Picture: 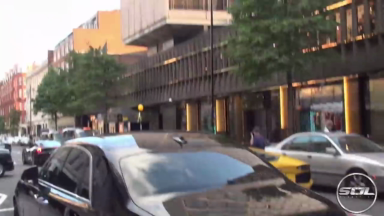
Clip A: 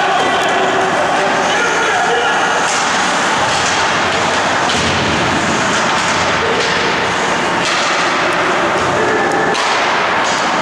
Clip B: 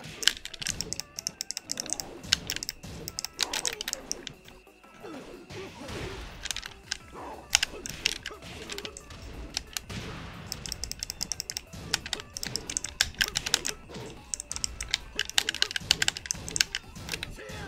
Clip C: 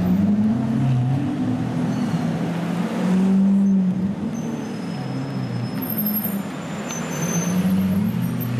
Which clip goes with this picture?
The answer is C